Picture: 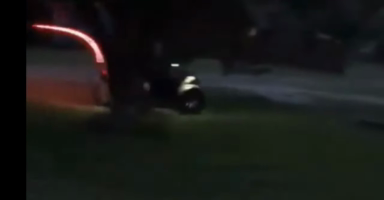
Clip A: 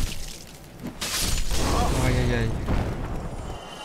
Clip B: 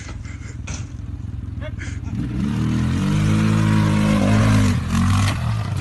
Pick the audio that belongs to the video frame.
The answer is B